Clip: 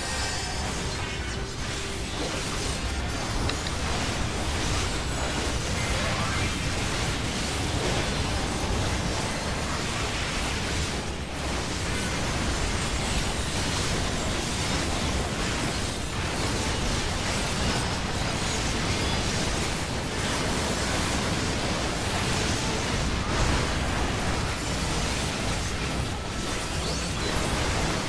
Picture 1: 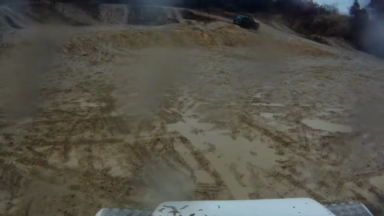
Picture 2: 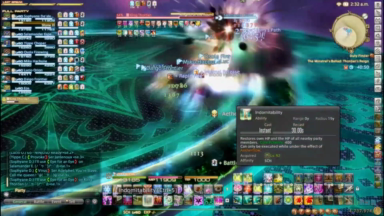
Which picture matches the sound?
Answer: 2